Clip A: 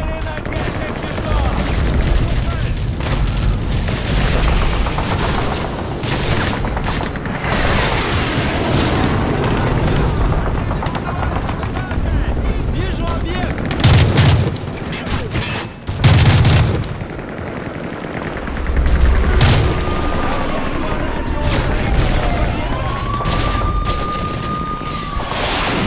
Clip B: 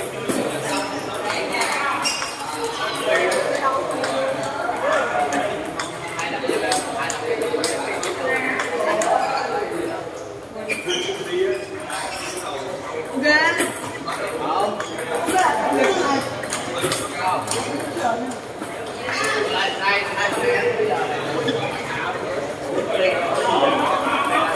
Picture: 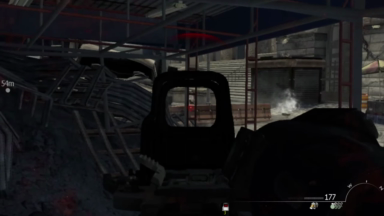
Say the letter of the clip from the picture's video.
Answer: A